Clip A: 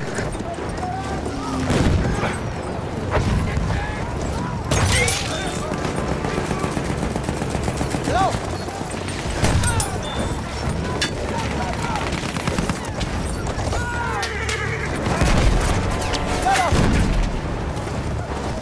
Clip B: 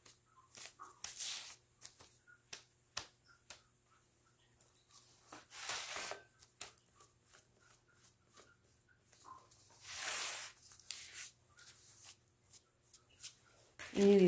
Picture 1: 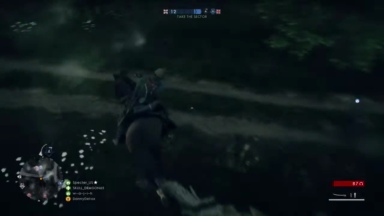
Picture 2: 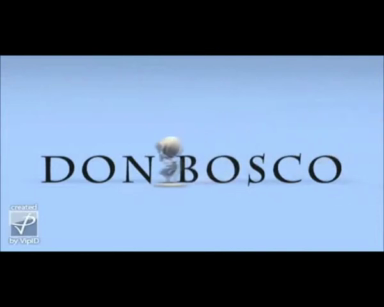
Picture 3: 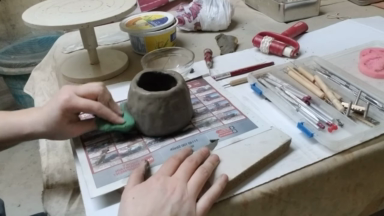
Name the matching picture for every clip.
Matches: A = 1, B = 3